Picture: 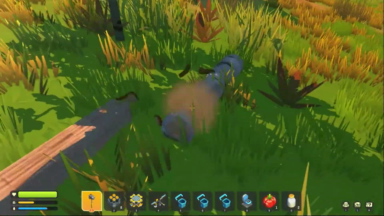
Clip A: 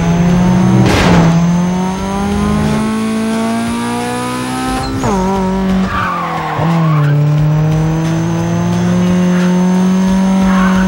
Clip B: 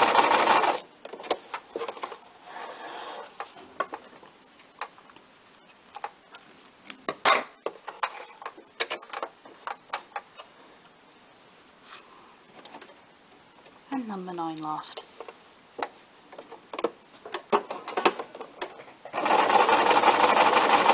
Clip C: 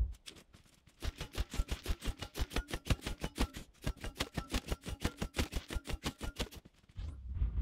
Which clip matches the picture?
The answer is C